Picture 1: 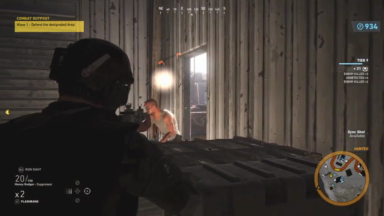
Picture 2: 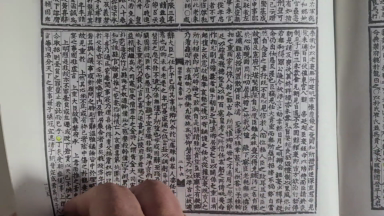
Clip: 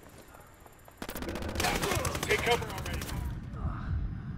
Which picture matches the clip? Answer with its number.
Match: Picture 1